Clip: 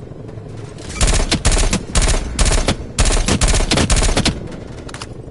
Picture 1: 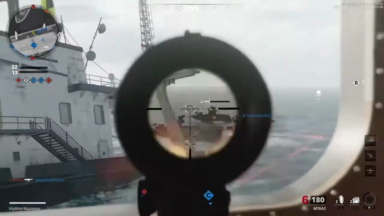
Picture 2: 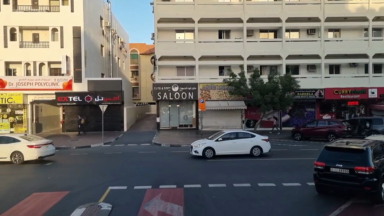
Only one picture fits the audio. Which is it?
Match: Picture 1